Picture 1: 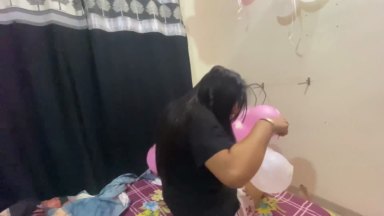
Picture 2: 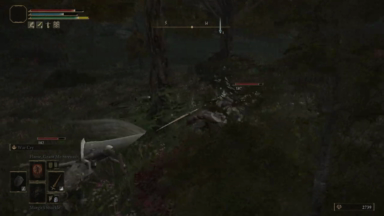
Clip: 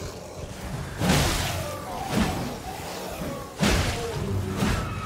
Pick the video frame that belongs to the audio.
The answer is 2